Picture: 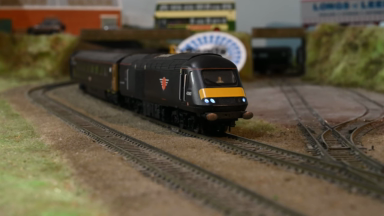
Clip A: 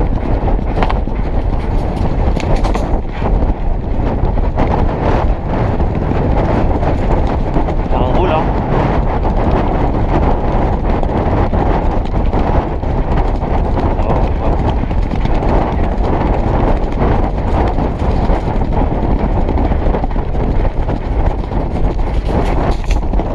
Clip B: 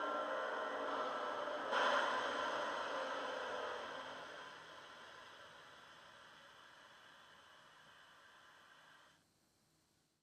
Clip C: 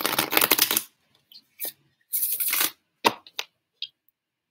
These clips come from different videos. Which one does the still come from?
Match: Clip B